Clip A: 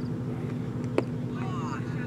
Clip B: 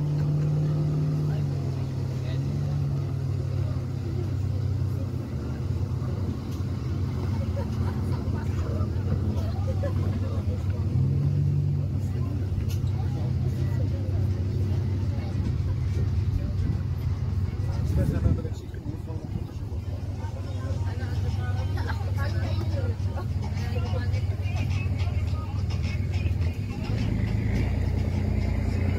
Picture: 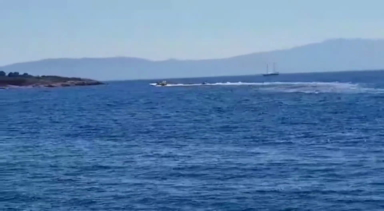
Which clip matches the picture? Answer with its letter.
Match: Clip B